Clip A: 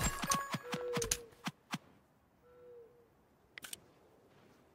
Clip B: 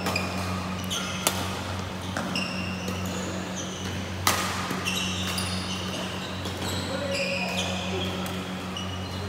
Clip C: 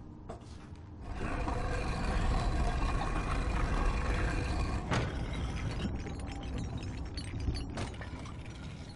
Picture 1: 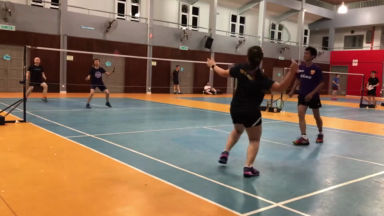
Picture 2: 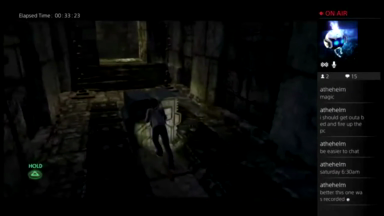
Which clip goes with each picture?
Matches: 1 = B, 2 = C